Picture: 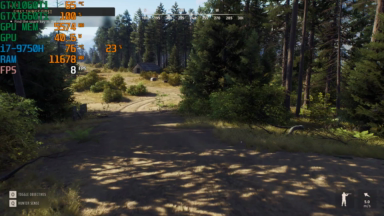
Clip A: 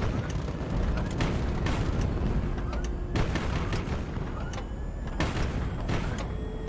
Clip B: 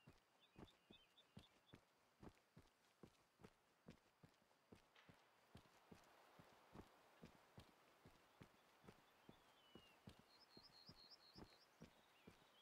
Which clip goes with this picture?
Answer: B